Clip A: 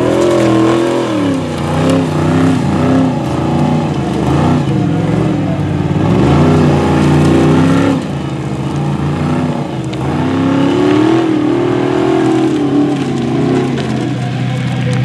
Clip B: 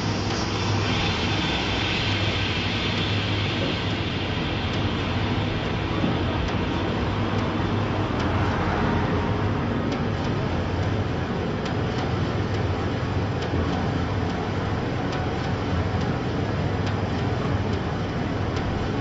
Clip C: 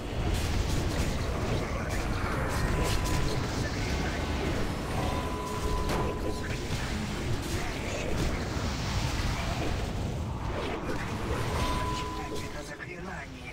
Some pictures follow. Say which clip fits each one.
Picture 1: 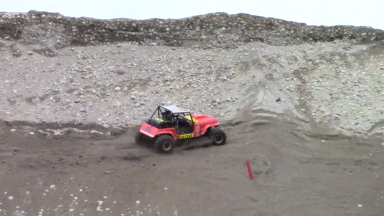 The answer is A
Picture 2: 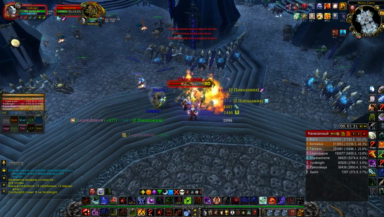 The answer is C